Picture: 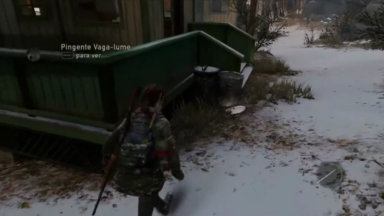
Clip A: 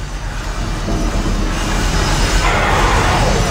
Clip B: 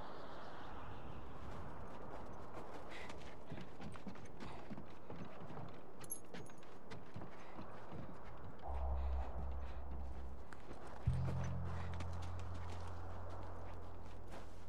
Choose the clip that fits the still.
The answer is B